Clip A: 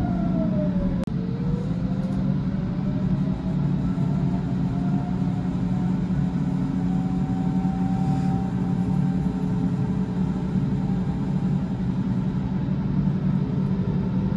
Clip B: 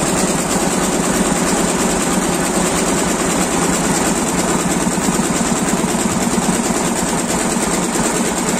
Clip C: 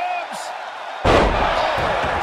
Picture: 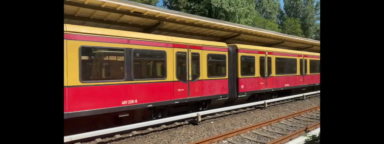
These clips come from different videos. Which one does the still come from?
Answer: A